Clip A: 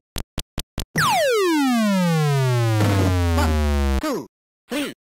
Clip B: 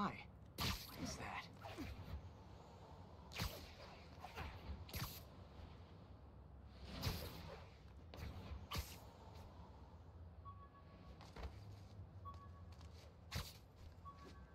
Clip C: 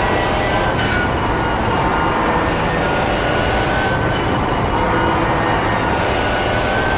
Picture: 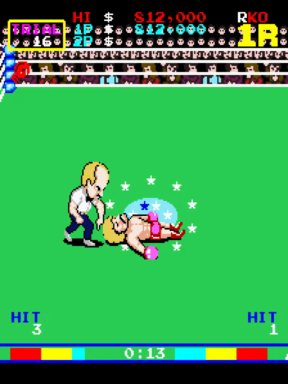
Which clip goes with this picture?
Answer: A